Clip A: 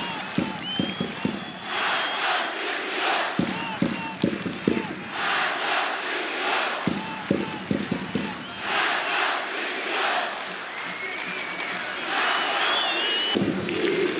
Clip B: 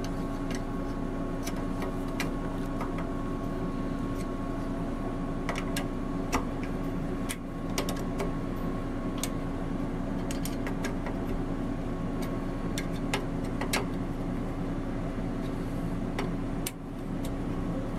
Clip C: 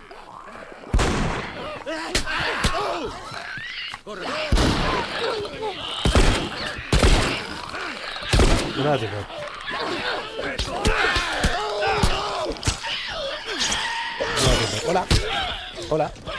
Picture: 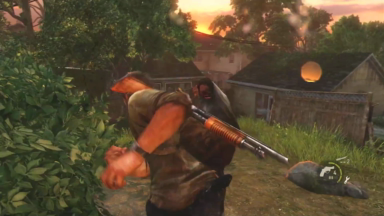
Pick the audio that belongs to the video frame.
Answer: C